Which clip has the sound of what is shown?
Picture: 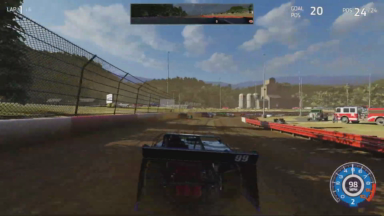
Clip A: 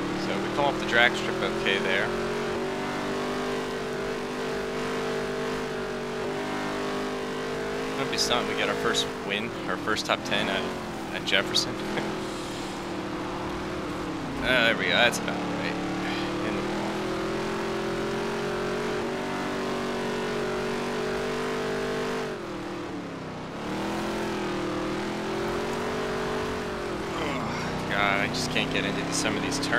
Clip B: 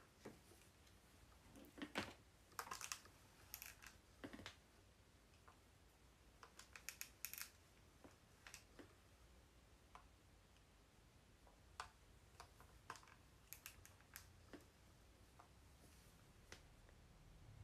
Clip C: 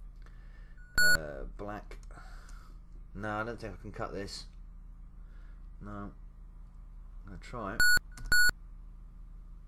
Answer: A